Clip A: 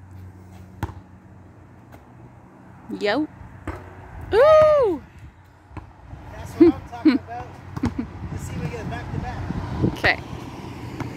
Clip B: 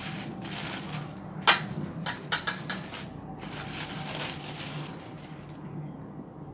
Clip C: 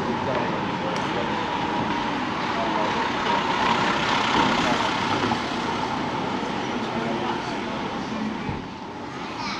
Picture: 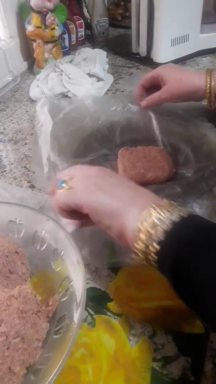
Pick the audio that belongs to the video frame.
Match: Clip B